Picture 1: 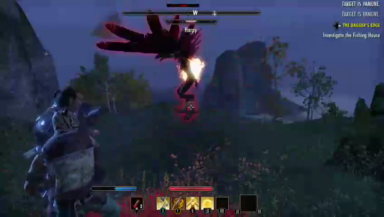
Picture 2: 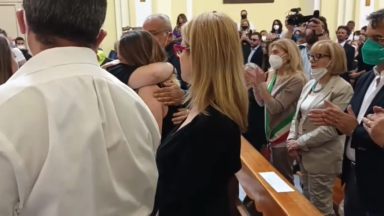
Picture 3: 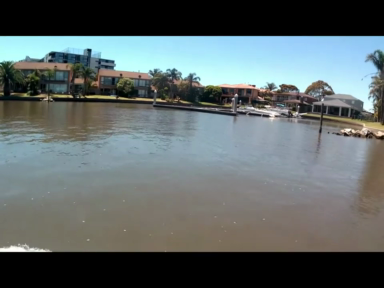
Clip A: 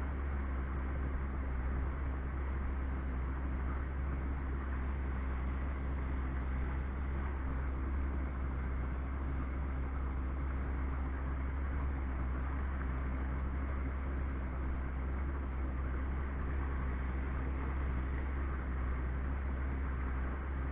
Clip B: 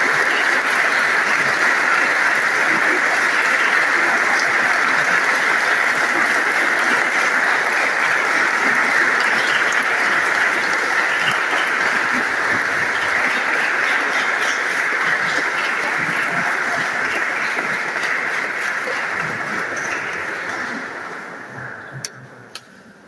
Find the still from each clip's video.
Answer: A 3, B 2